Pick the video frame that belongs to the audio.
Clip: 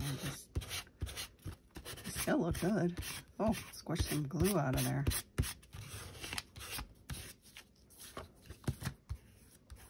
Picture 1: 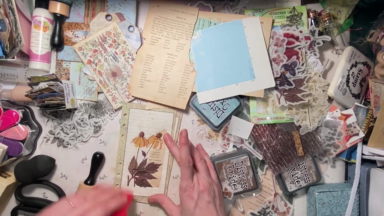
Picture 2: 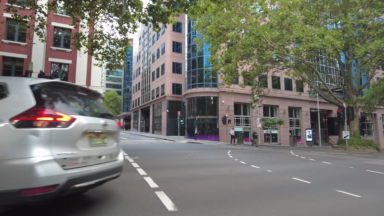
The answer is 1